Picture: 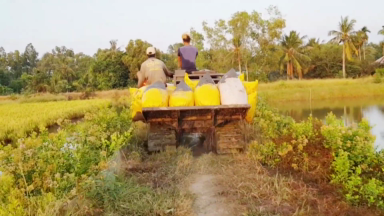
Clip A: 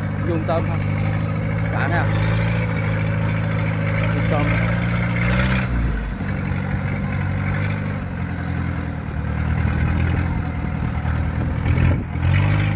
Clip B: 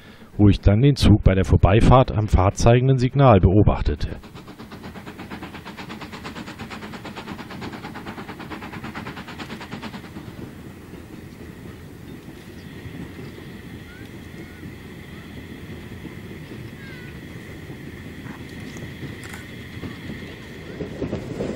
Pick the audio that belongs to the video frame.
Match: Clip A